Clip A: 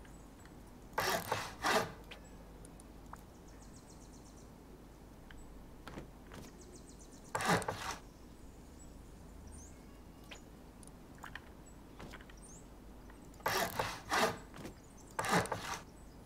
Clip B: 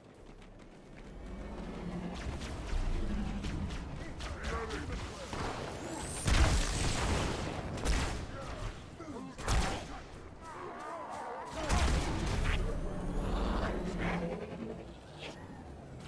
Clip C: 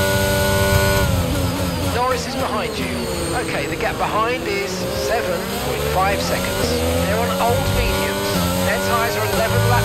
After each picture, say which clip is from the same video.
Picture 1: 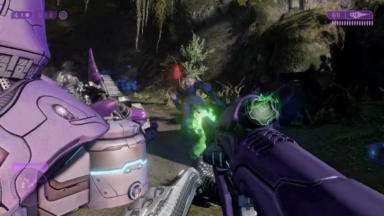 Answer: B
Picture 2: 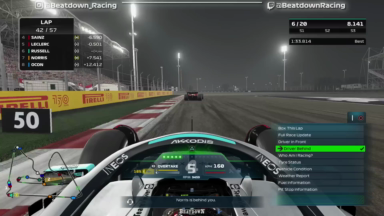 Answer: C